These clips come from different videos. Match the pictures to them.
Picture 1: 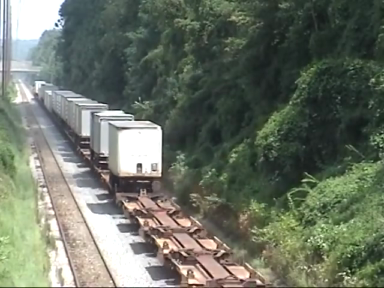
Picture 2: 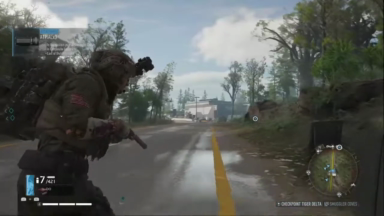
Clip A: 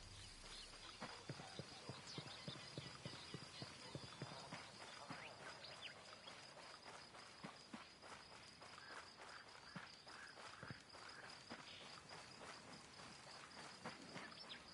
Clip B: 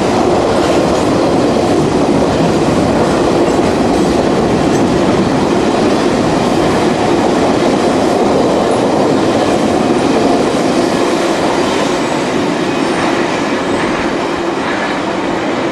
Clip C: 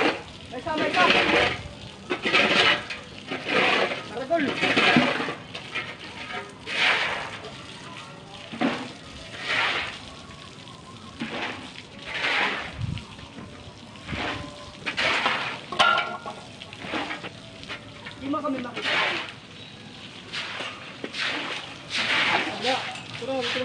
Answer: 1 B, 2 A